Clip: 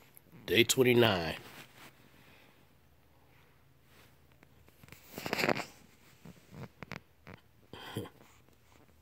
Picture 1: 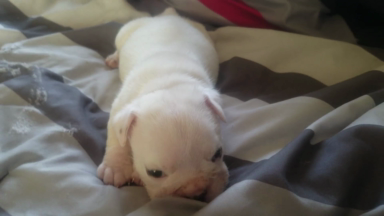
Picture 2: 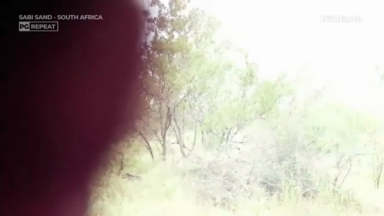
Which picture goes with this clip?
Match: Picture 1